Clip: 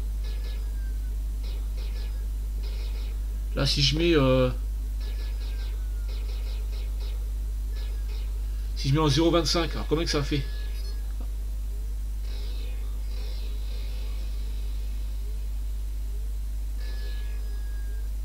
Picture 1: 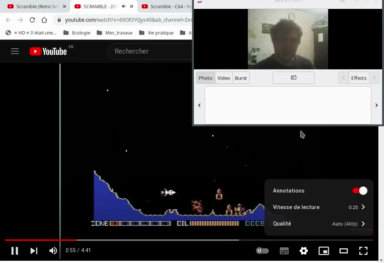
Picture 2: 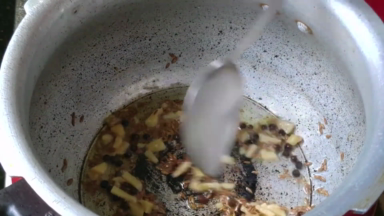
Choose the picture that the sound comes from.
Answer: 1